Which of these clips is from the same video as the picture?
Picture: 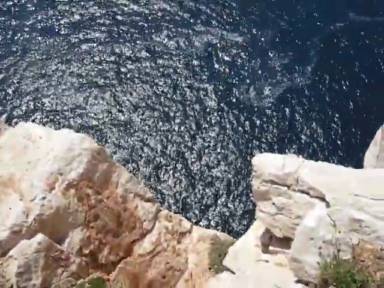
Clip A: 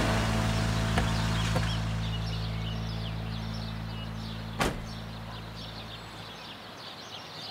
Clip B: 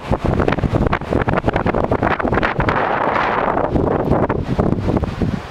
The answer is B